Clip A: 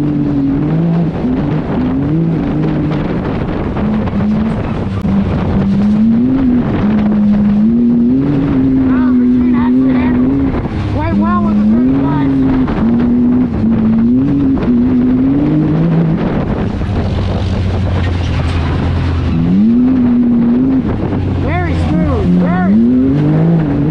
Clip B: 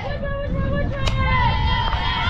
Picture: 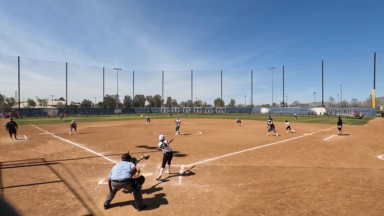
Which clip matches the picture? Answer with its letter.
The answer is B